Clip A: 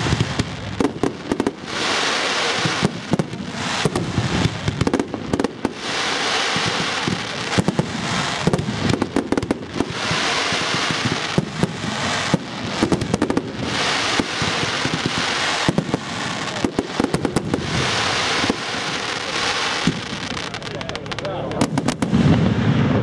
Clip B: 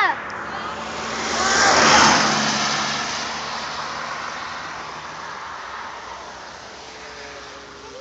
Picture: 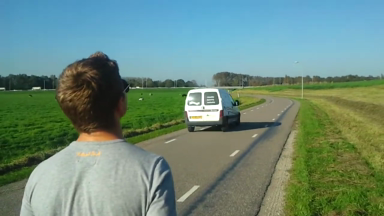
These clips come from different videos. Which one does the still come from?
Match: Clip B